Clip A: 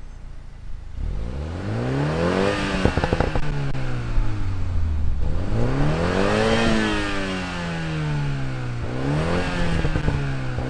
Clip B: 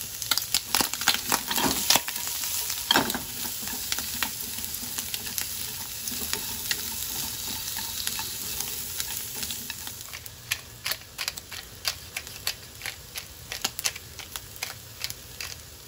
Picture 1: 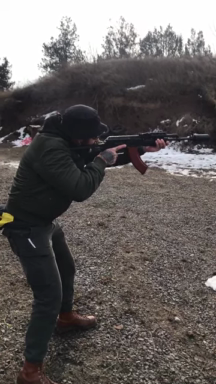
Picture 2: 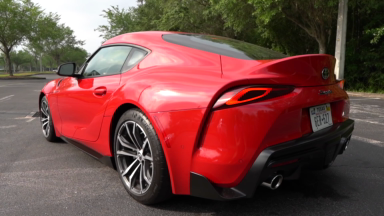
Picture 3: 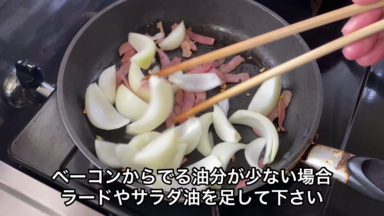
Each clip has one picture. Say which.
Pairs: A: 2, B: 3